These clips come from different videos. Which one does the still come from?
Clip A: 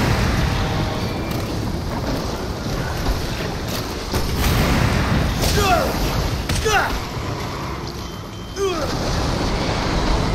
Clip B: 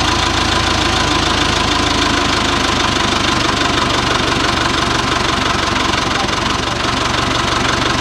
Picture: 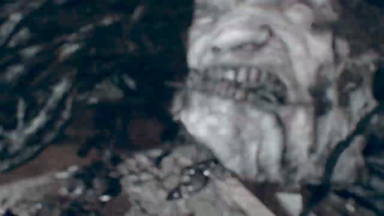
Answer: A